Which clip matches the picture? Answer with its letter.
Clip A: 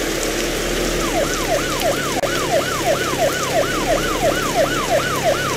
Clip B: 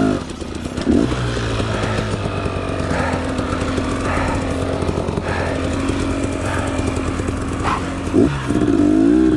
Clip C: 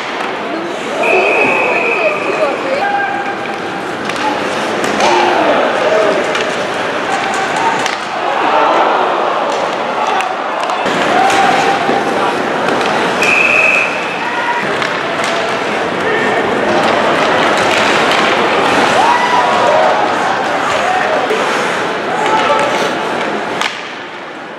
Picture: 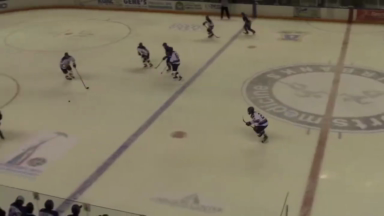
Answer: C